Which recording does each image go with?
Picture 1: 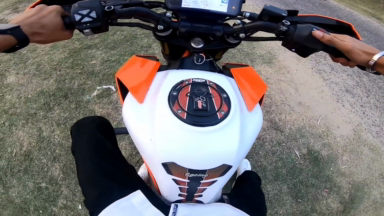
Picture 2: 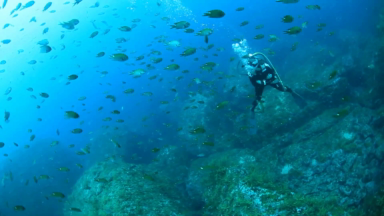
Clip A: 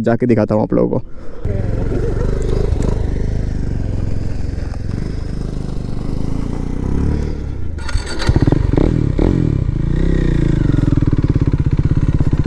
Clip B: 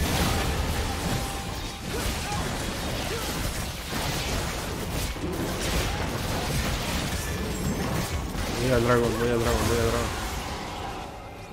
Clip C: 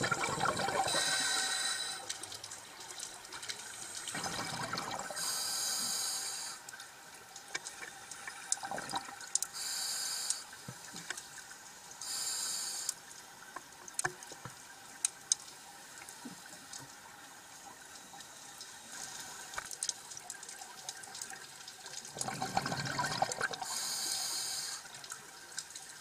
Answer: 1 A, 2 C